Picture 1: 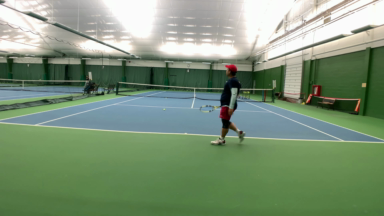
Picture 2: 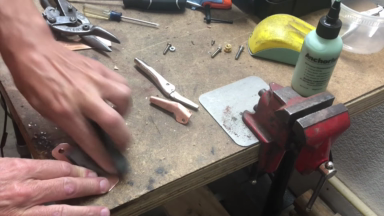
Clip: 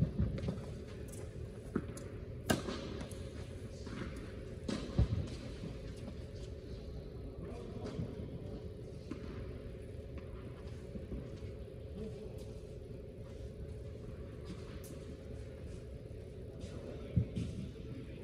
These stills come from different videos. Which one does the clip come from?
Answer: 1